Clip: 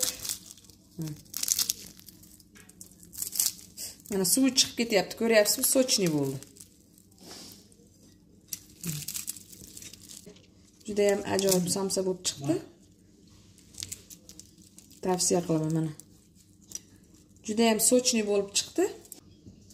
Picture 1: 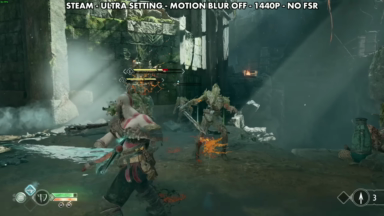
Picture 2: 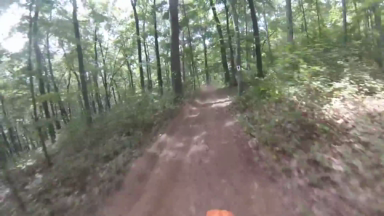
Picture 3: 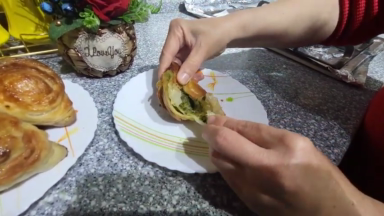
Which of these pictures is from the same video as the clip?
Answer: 3